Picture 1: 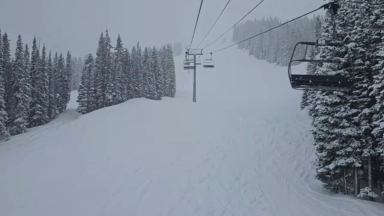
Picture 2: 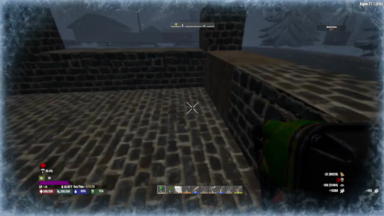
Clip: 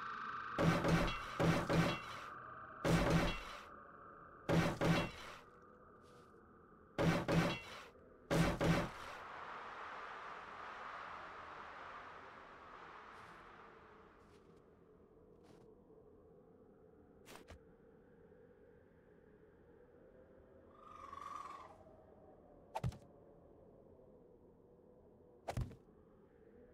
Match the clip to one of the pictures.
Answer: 2